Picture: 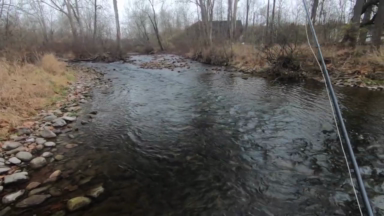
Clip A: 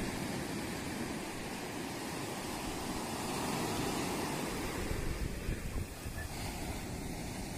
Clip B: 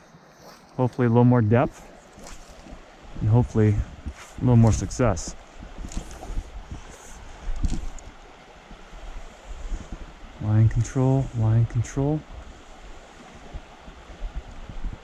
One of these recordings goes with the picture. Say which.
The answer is B